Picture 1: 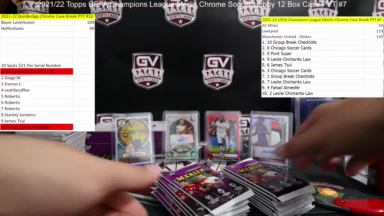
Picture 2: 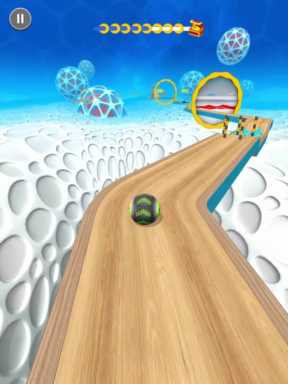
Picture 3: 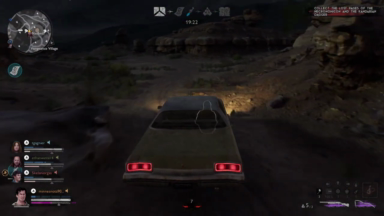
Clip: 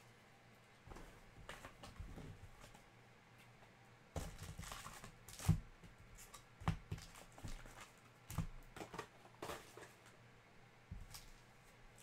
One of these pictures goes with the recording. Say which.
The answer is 1